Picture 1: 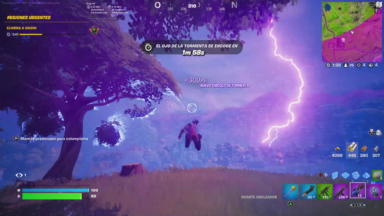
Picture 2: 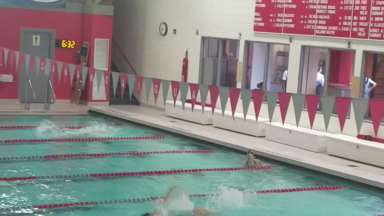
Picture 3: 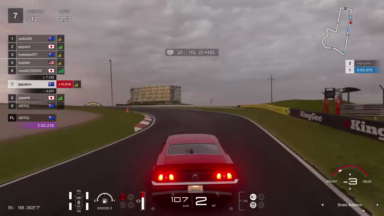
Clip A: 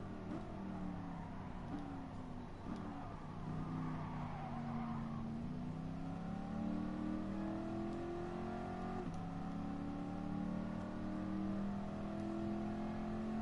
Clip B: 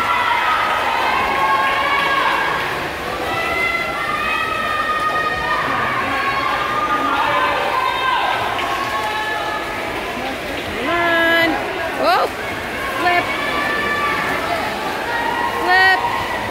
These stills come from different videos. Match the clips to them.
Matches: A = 3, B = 2